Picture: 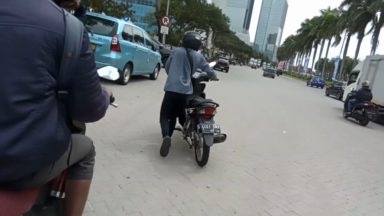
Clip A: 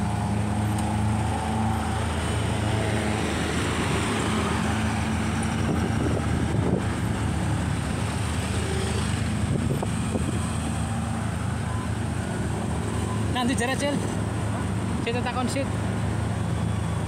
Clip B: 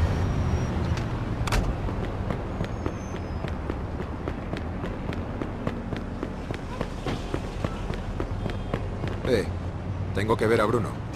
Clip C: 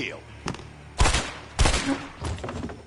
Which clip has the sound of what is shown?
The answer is A